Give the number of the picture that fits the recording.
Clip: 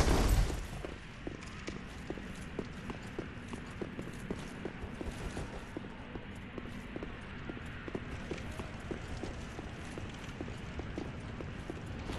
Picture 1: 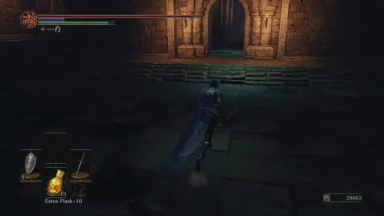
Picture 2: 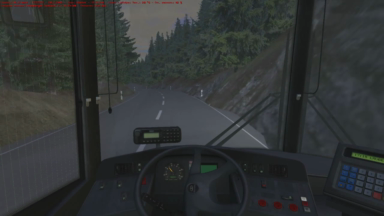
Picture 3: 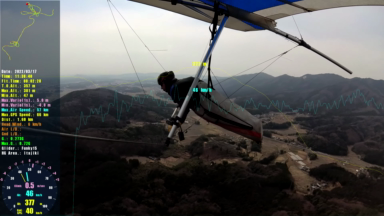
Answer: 1